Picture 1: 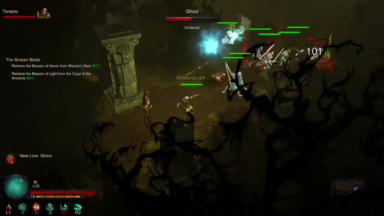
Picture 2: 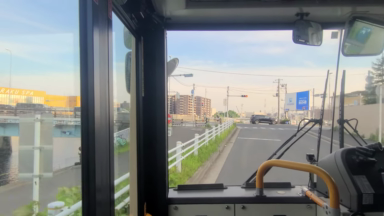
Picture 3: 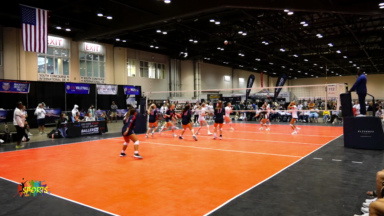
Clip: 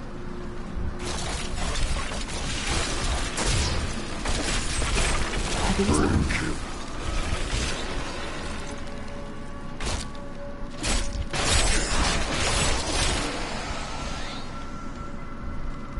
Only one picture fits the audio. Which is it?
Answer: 1